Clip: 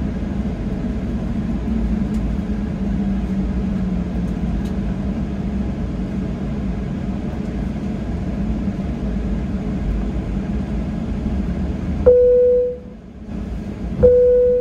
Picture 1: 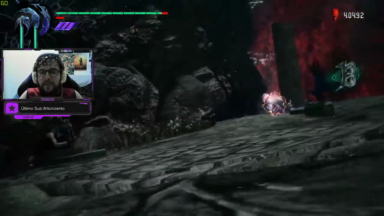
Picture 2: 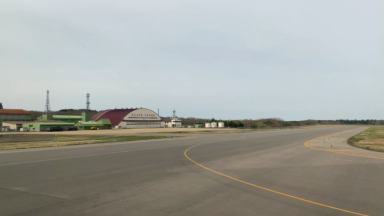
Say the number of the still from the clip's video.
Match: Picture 2